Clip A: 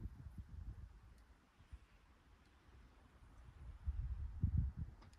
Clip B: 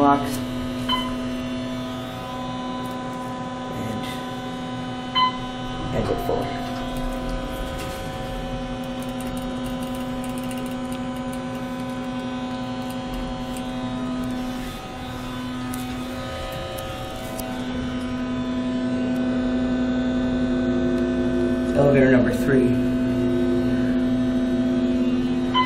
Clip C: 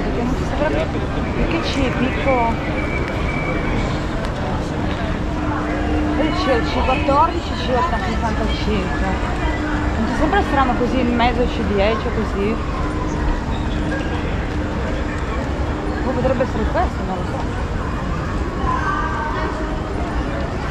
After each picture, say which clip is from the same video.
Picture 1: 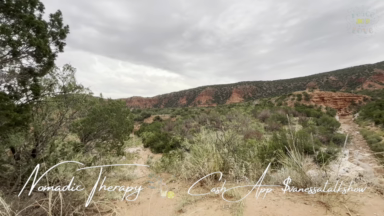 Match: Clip A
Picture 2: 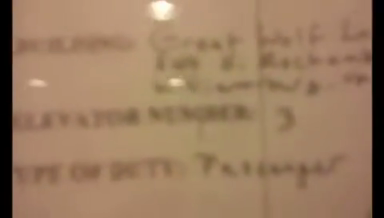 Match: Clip B